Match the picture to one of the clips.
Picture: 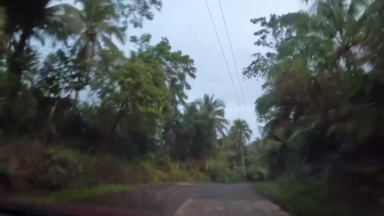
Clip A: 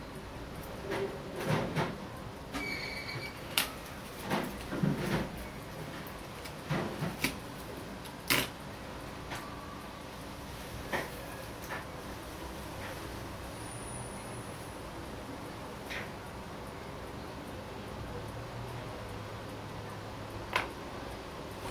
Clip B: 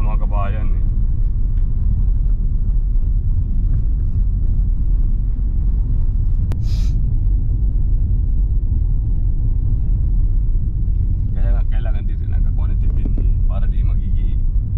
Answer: B